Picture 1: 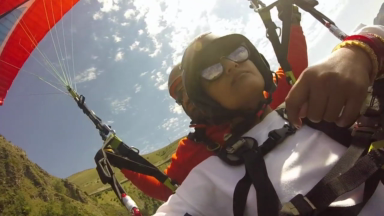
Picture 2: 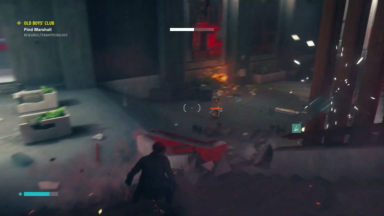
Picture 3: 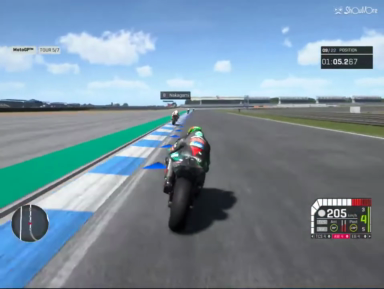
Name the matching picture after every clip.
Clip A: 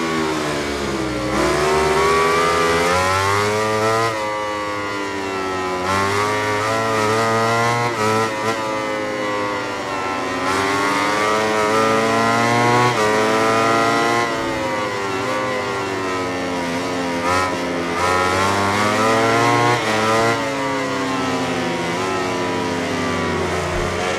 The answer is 3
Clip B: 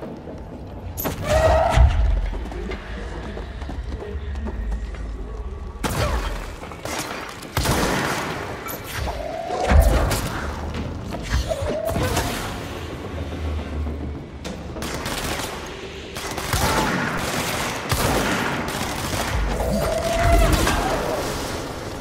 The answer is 2